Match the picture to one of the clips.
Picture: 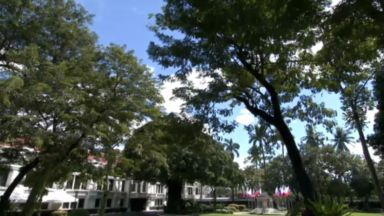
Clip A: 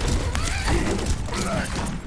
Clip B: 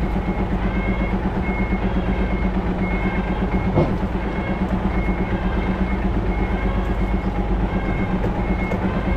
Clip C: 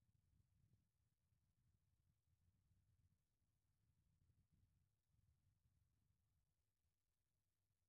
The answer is C